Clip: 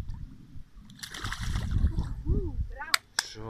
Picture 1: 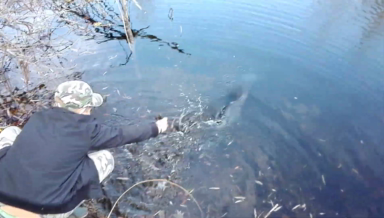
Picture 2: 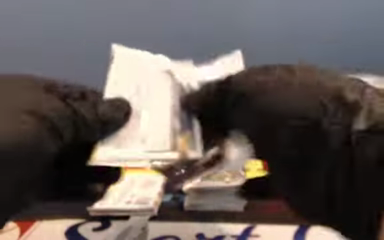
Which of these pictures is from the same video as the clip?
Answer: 1